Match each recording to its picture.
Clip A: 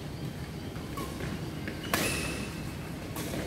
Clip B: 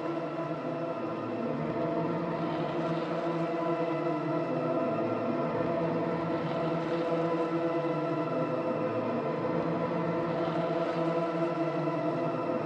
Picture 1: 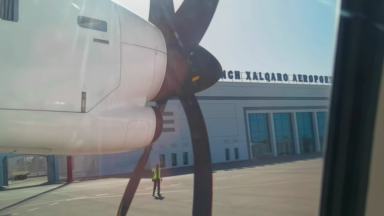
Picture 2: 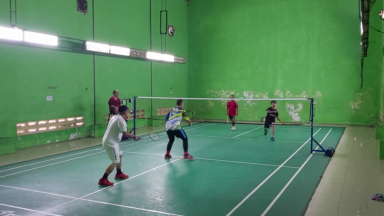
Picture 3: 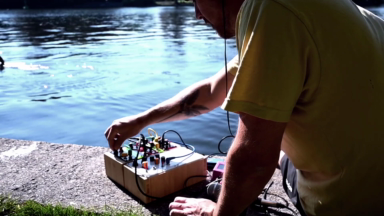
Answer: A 2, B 3